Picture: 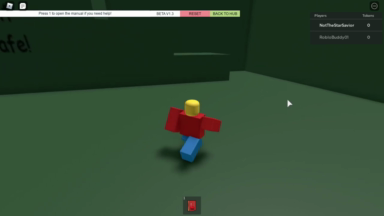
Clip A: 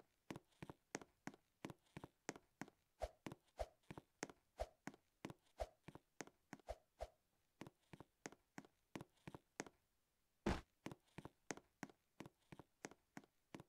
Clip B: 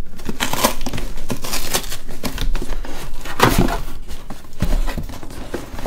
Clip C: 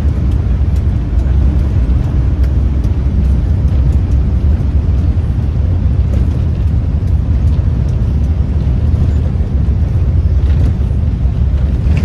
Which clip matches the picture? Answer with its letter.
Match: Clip A